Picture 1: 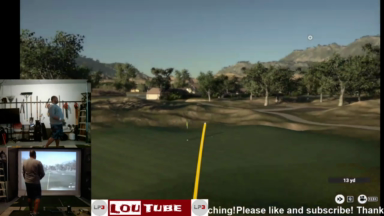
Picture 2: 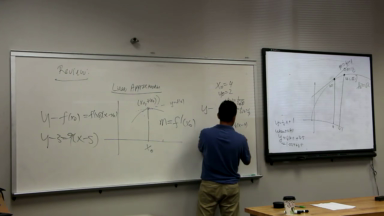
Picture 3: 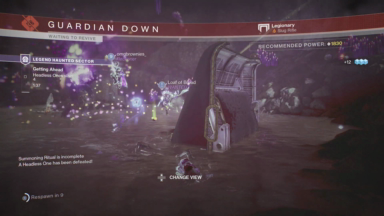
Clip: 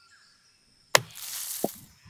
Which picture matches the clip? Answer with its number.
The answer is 1